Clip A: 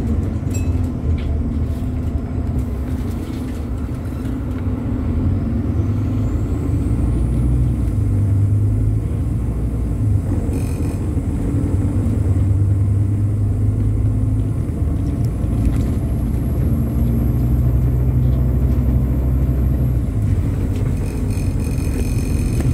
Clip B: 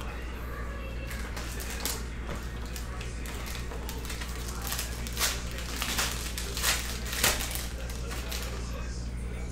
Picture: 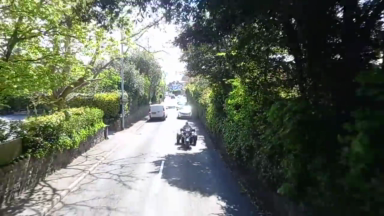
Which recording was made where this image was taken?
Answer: A